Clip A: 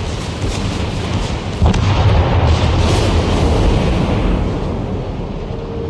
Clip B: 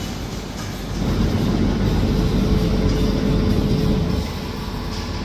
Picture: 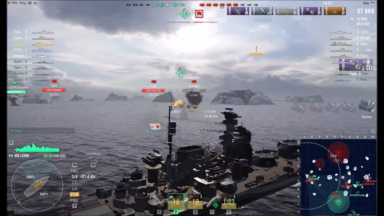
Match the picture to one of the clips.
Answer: A